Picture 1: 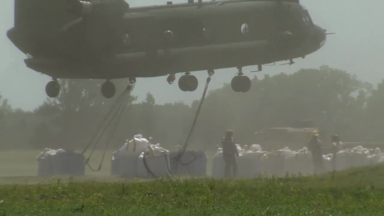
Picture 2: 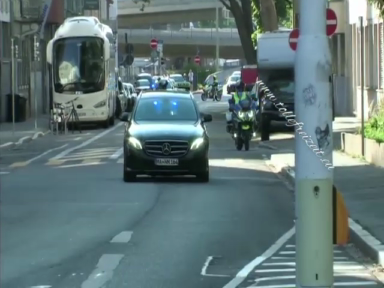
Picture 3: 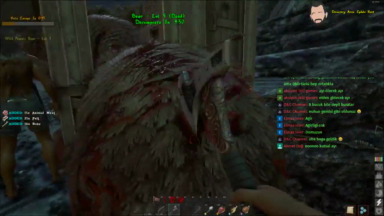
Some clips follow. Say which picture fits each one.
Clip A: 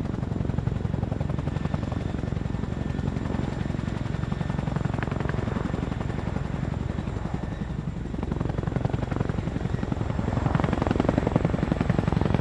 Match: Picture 1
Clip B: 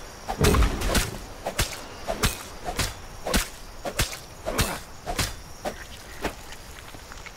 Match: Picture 3